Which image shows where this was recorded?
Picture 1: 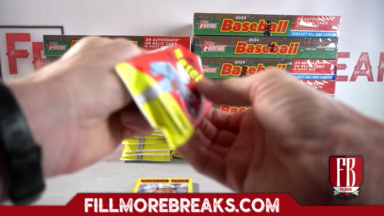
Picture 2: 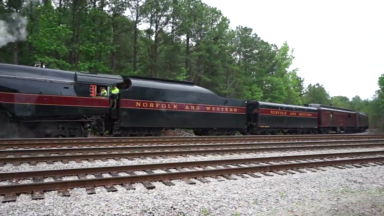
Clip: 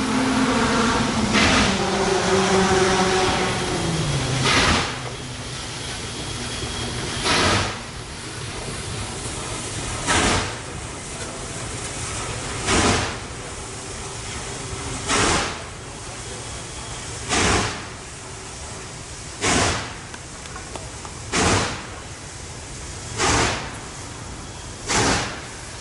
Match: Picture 2